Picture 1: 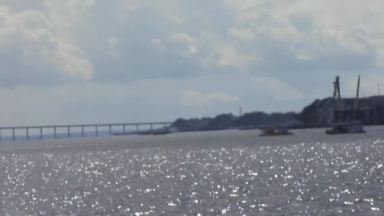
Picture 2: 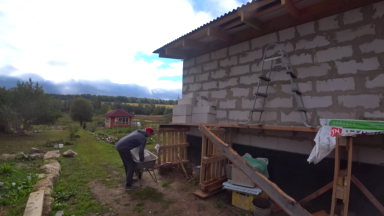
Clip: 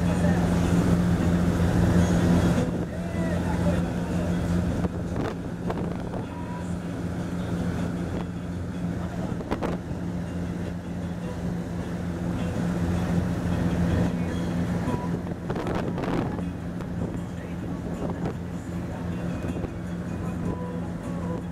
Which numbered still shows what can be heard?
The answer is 1